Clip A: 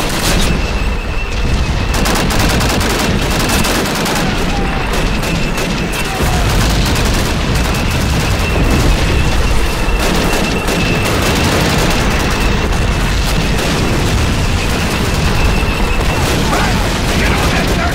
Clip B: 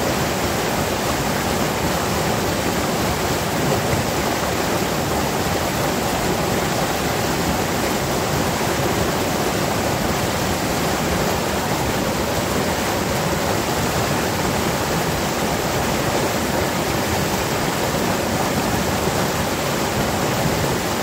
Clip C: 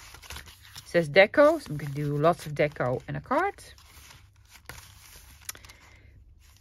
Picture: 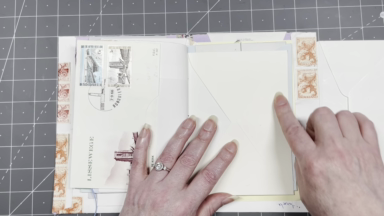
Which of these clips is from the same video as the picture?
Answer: C